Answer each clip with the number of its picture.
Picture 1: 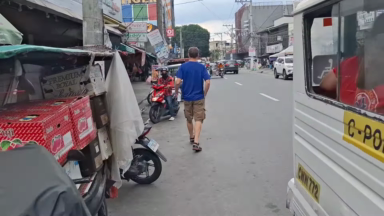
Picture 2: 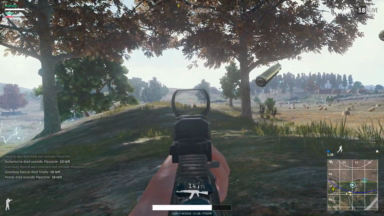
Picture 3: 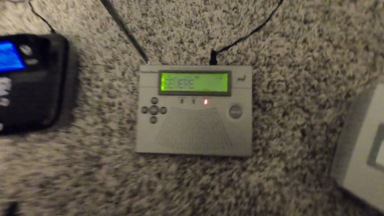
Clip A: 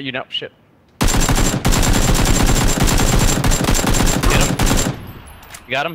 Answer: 2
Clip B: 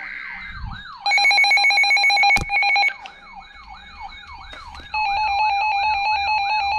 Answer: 3